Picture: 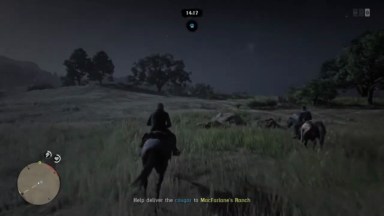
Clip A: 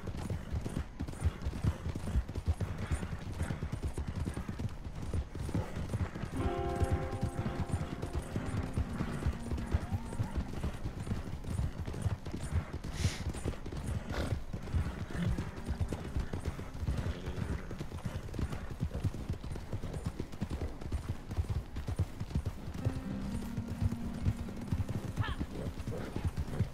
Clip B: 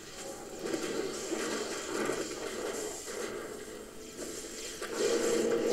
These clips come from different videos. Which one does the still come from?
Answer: A